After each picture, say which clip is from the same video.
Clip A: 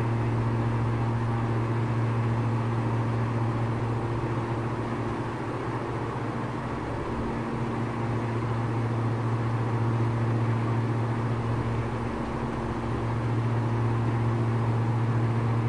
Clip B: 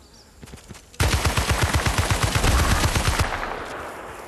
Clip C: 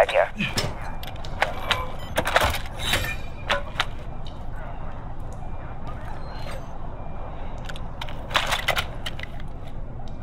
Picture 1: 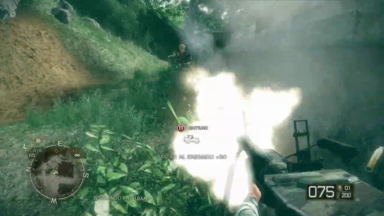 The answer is B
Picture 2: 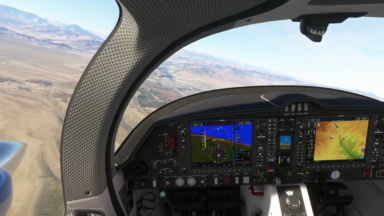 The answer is A